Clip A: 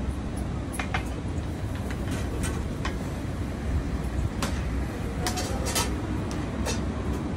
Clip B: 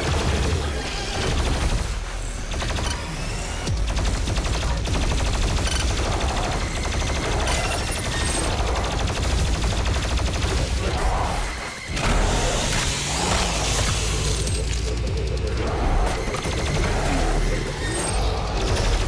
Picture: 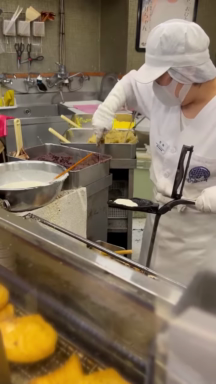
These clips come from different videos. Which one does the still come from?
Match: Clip A